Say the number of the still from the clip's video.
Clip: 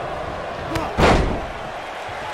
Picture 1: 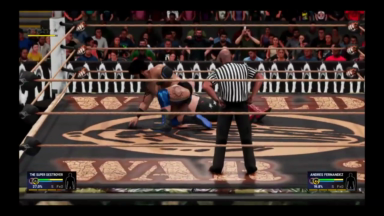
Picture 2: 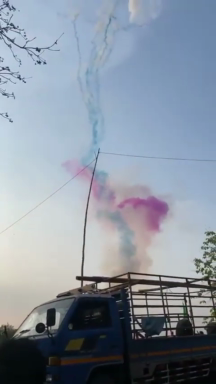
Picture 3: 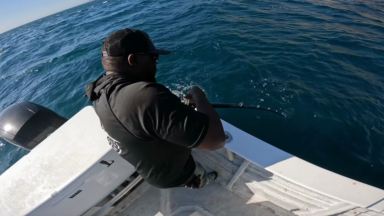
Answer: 1